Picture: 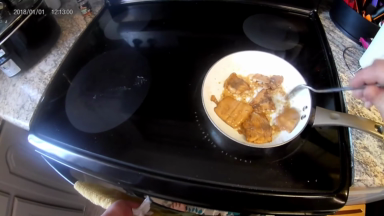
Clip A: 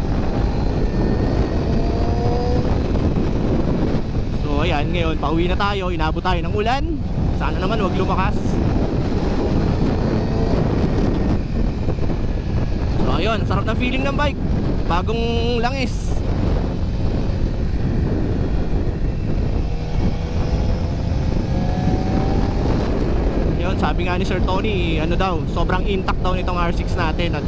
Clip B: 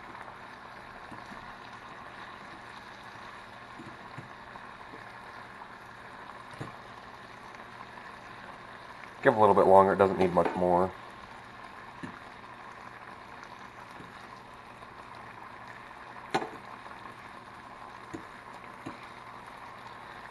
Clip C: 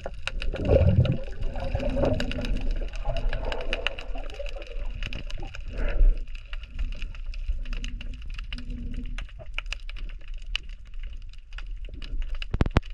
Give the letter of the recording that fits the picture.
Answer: B